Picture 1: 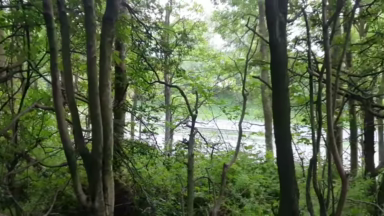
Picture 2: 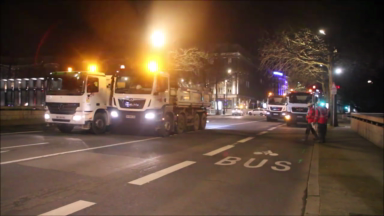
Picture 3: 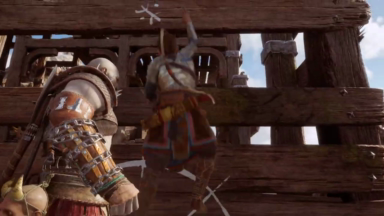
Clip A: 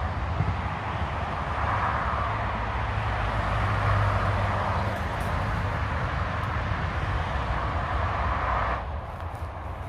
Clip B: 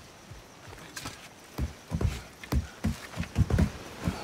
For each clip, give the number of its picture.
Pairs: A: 1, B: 3